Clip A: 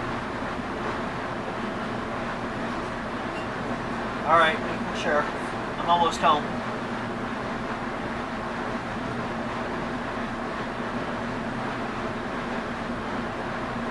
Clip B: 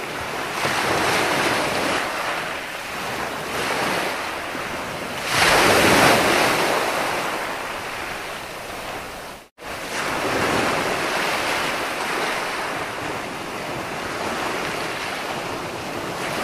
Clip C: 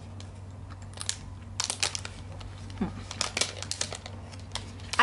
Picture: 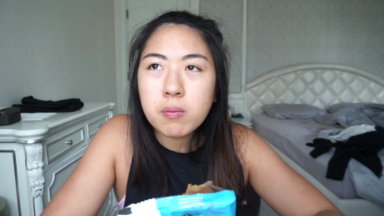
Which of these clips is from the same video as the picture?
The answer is C